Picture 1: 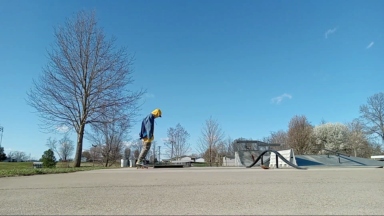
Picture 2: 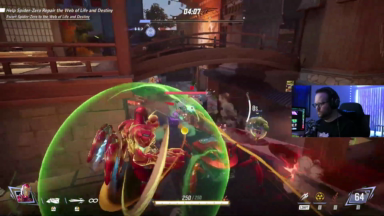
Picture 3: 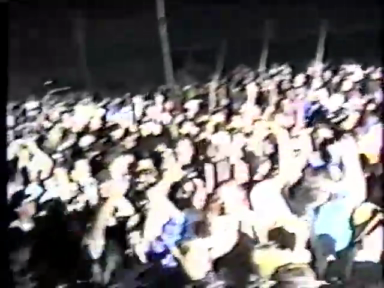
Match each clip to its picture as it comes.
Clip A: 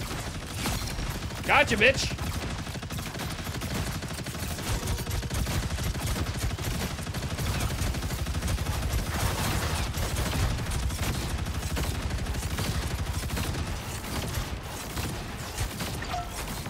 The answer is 2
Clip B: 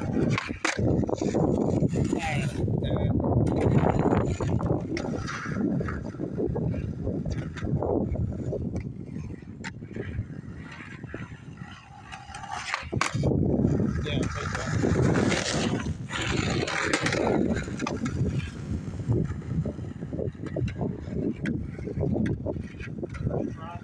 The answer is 1